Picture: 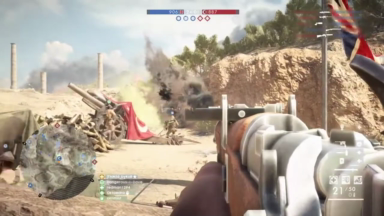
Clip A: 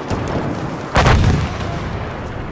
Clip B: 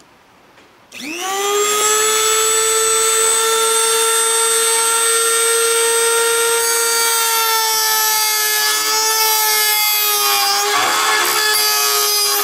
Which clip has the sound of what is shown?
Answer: A